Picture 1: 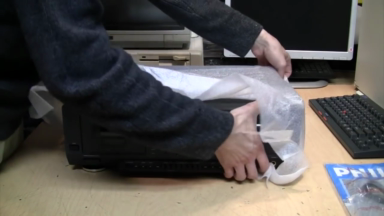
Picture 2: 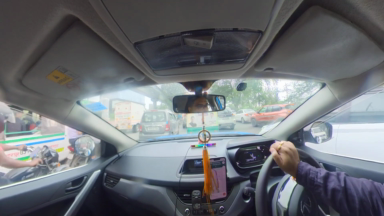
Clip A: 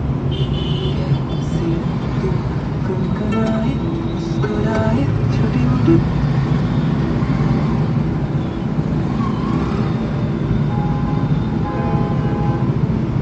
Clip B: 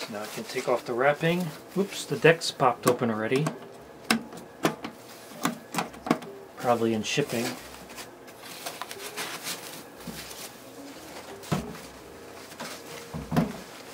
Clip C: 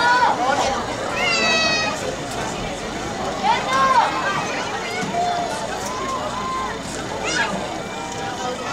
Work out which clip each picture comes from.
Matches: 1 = B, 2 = A